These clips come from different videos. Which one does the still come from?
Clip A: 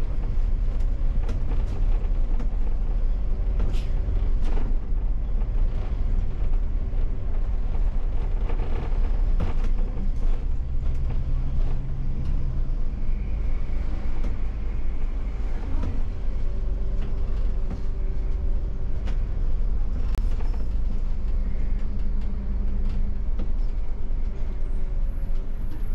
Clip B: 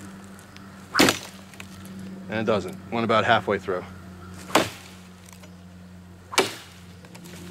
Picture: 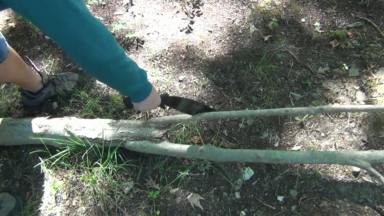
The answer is B